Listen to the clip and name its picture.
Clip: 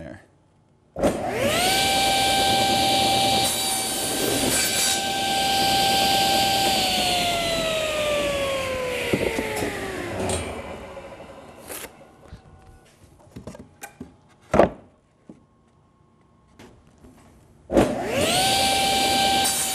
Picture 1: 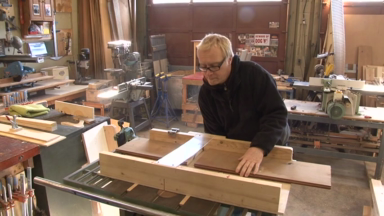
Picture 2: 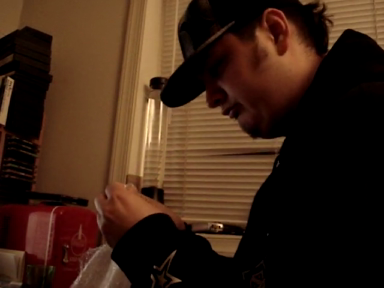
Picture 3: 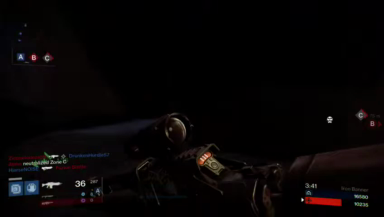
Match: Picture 1